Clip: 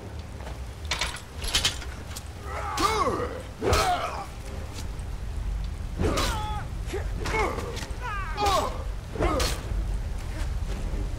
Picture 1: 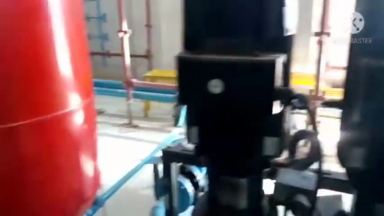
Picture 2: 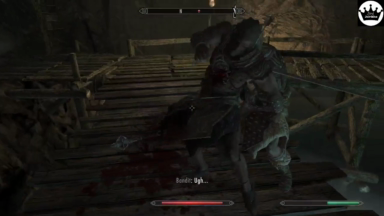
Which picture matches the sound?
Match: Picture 2